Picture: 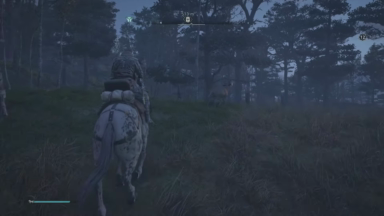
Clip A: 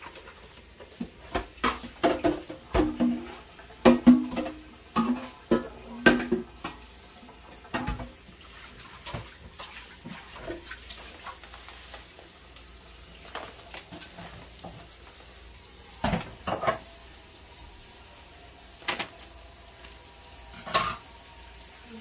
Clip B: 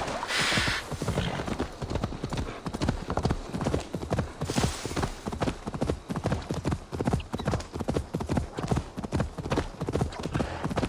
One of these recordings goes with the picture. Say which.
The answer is B